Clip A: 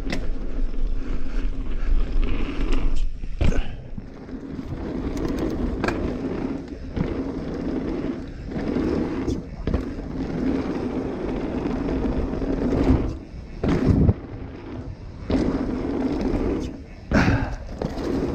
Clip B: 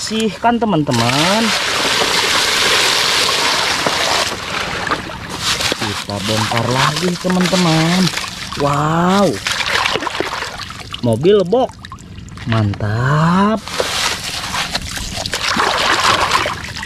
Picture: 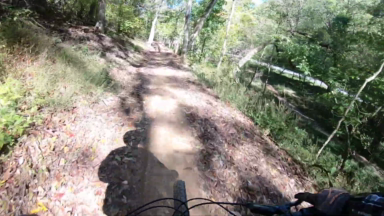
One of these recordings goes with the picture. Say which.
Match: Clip A